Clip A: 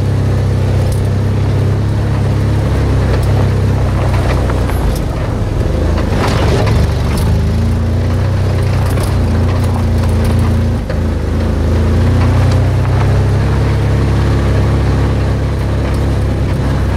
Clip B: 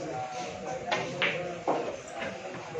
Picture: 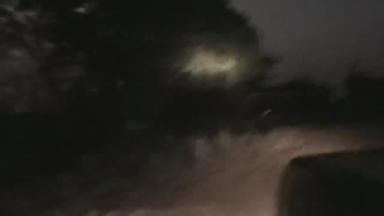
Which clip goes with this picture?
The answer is A